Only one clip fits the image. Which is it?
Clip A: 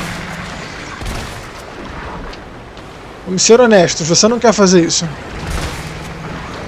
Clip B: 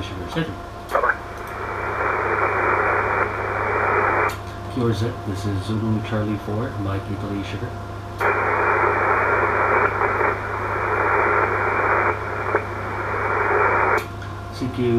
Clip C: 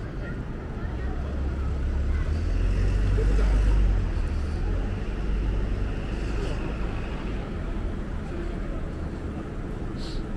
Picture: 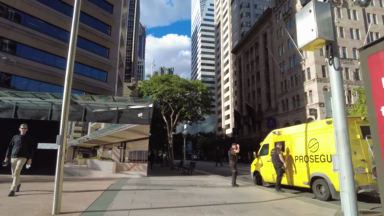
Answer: C